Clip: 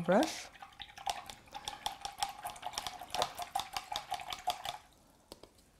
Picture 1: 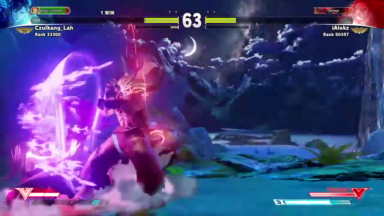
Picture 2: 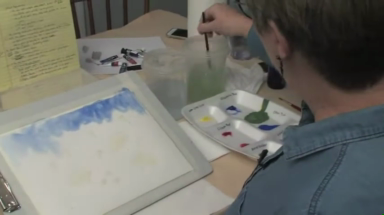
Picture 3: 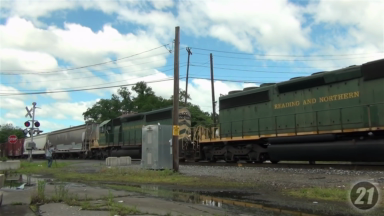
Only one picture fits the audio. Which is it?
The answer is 2